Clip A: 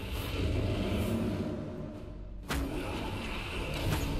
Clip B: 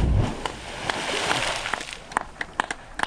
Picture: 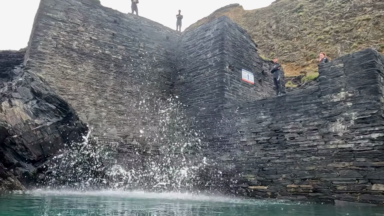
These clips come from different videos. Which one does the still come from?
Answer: B